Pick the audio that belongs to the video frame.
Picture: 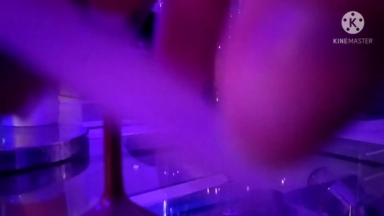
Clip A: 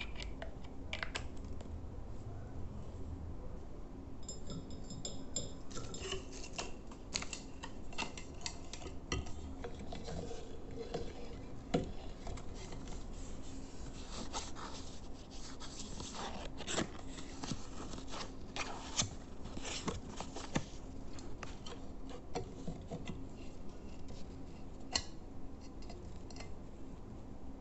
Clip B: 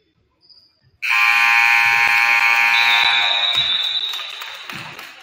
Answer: A